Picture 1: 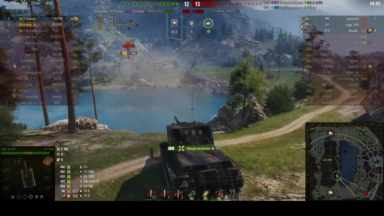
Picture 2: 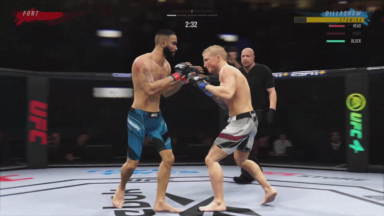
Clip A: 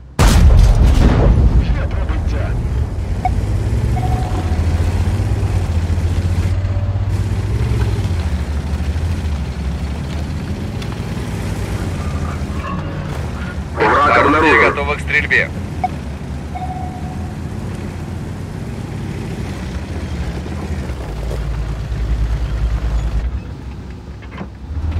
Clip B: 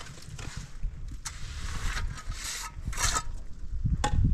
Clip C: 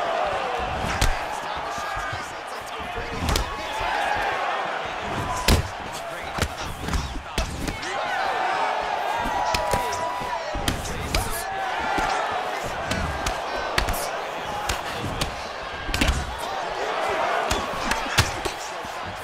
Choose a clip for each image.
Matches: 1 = A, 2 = C